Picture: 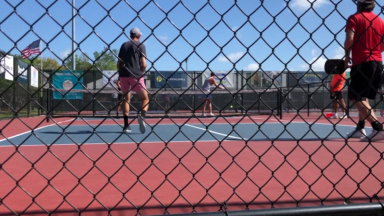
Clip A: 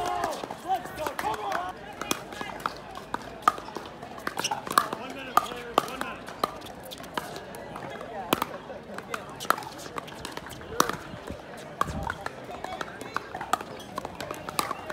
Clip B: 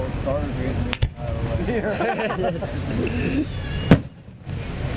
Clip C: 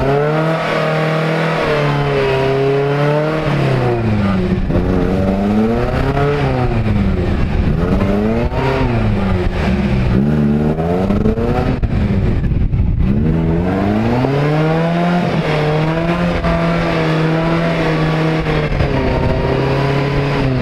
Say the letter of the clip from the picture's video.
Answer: A